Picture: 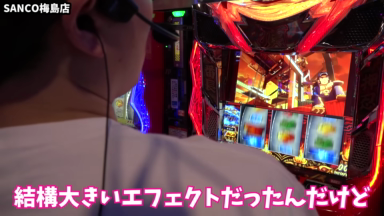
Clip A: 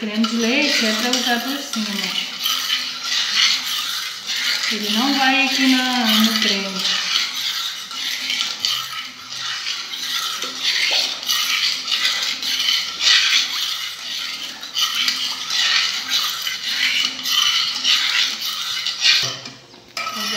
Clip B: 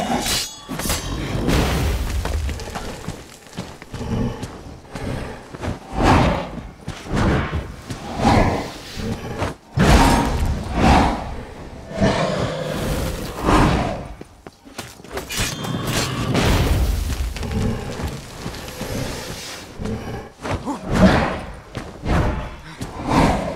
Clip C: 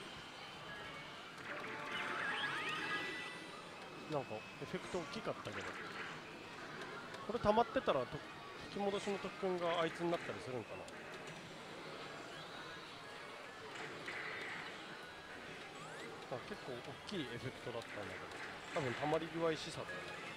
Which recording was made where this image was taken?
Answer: C